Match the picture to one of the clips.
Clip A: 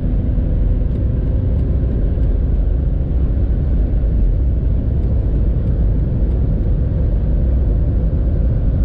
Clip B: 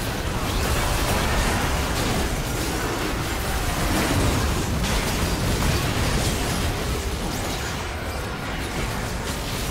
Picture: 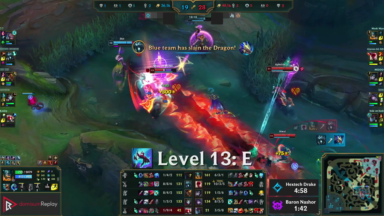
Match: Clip B